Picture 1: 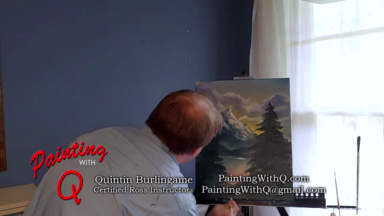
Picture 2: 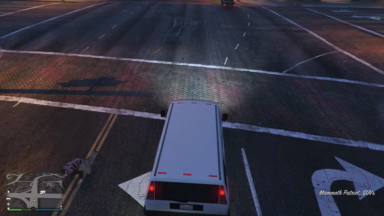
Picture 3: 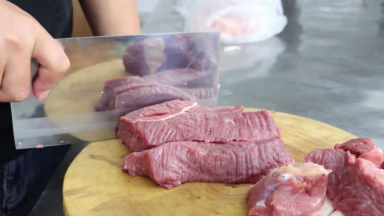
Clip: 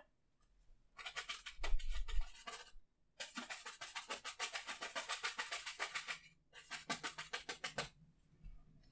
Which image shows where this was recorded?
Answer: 1